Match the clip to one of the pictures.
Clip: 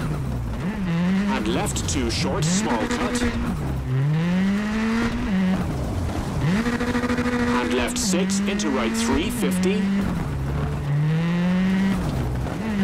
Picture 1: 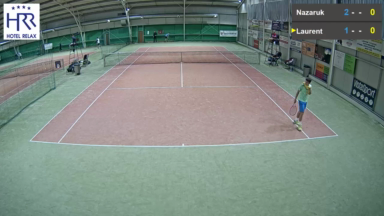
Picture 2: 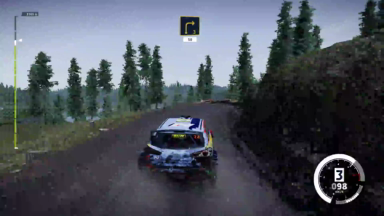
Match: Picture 2